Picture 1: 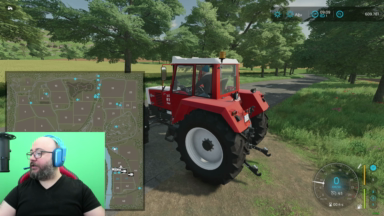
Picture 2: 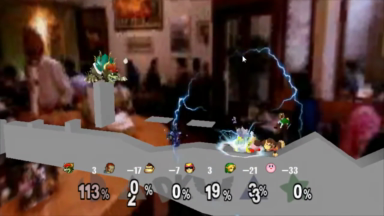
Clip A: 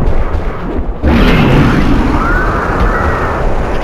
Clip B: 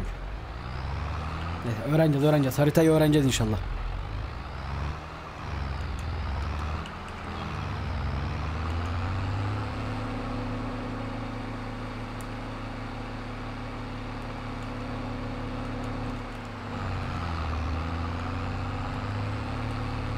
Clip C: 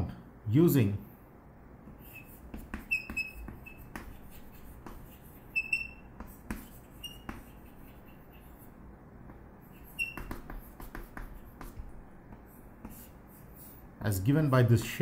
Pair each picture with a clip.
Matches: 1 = B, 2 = A